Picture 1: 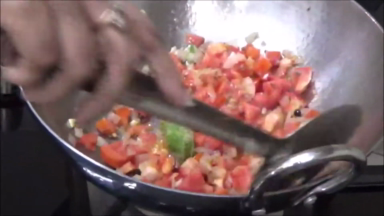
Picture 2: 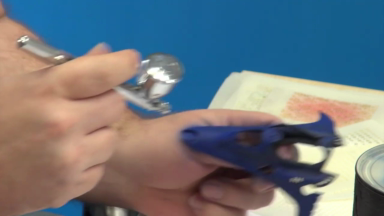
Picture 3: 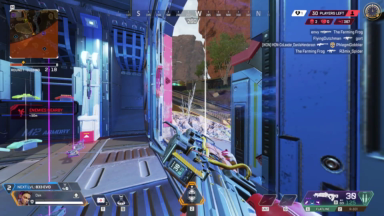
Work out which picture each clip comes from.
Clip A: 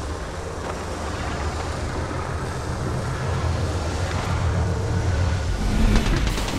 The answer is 3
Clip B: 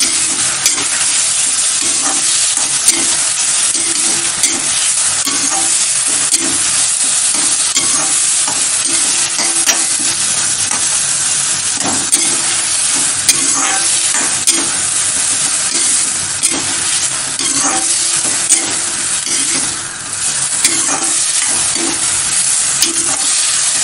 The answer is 1